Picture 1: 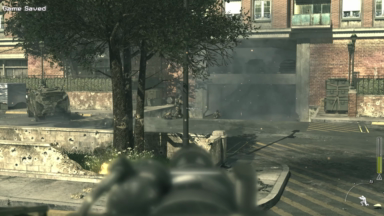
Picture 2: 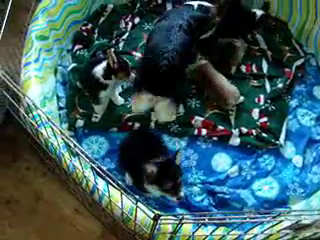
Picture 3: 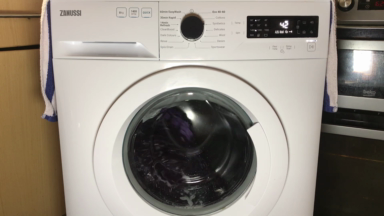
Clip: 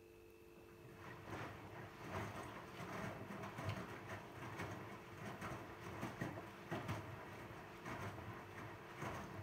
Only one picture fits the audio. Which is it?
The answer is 3